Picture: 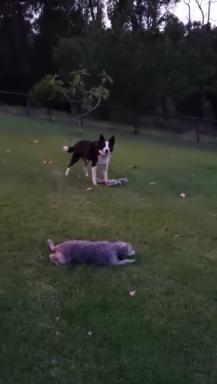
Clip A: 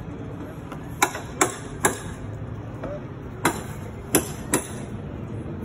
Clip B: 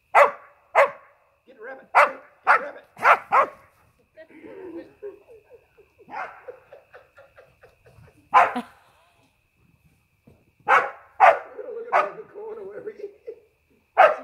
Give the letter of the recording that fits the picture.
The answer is B